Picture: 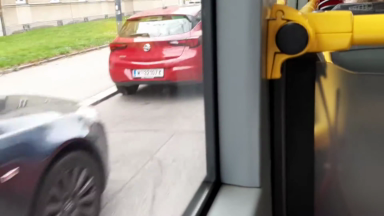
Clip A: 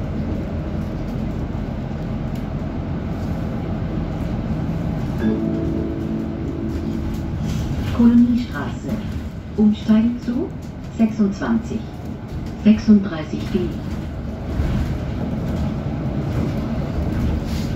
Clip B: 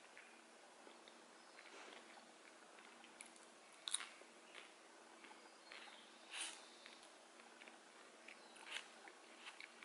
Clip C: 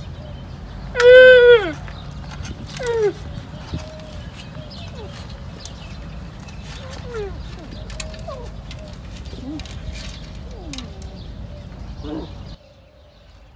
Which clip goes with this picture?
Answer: A